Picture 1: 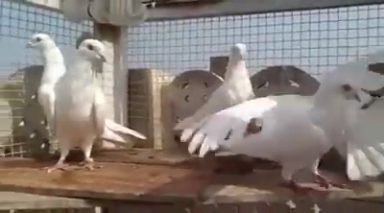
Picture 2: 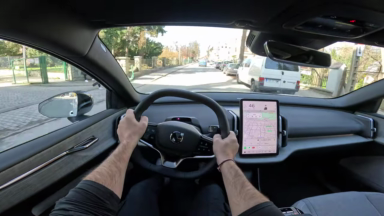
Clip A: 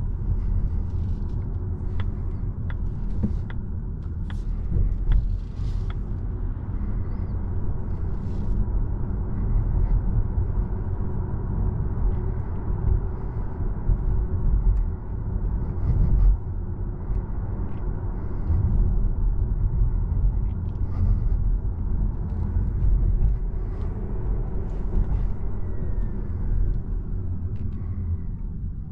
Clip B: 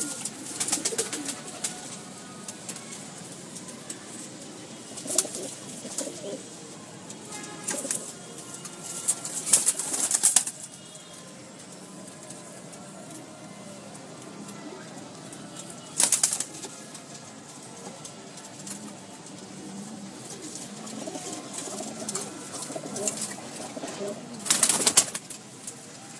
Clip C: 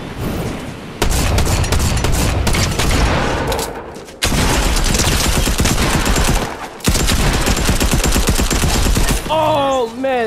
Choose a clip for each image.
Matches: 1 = B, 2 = A